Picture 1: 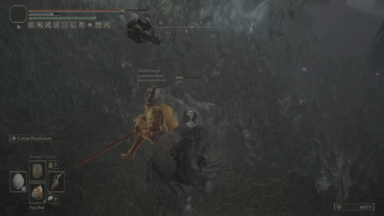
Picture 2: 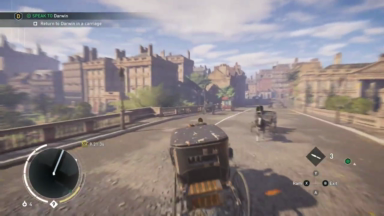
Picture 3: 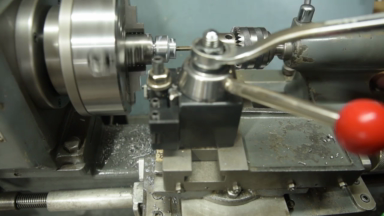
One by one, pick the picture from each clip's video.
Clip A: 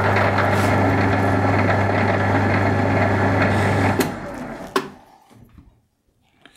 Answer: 3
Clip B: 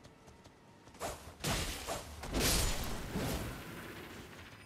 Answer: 1